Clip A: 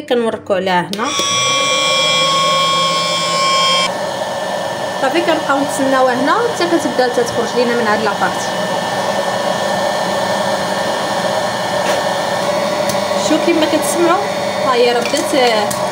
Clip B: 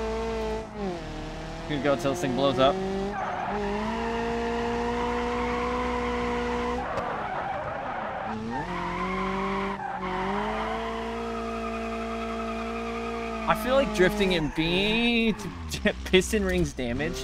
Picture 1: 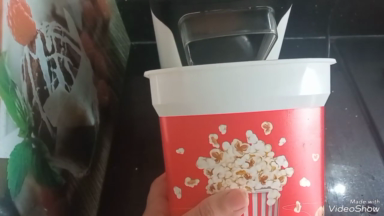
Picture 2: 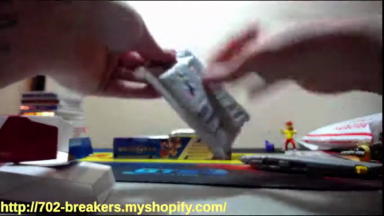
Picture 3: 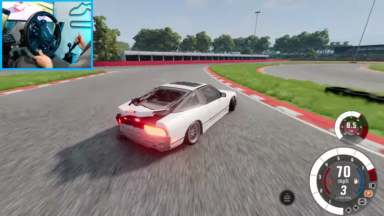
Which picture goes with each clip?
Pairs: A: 1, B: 3